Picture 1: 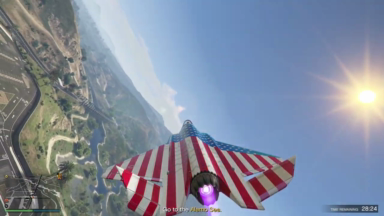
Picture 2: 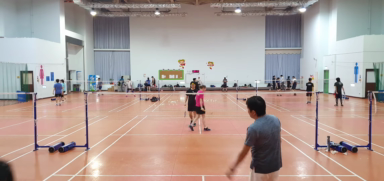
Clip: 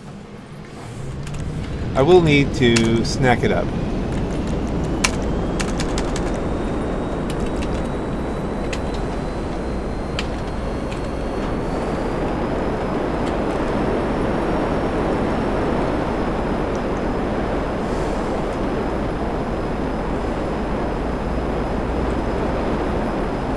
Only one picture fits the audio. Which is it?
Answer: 1